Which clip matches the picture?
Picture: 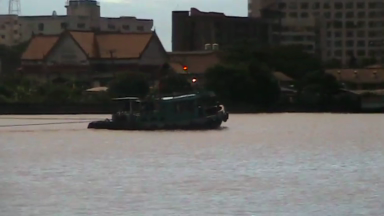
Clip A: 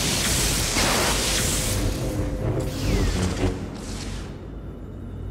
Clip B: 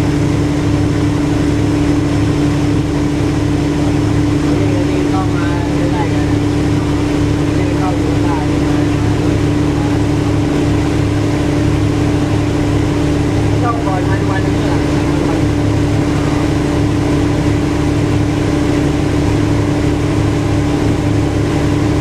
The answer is B